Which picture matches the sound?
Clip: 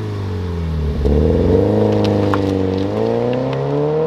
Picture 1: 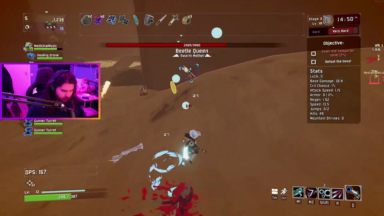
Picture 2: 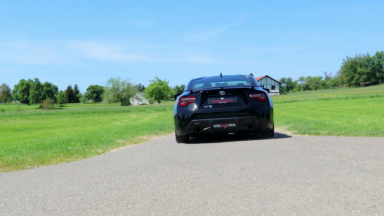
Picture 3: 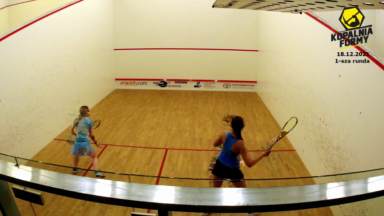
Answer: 2